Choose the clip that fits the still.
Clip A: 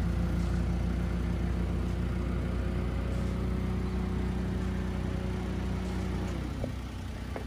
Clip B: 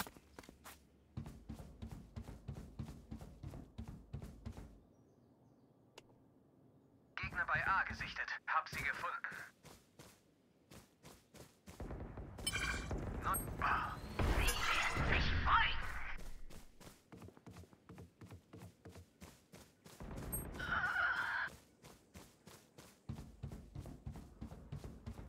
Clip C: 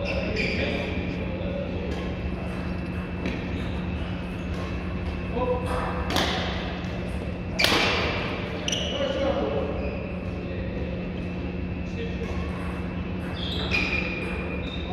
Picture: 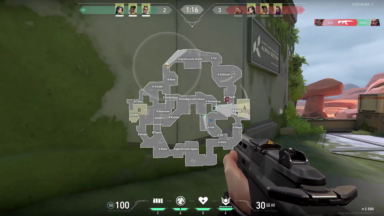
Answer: B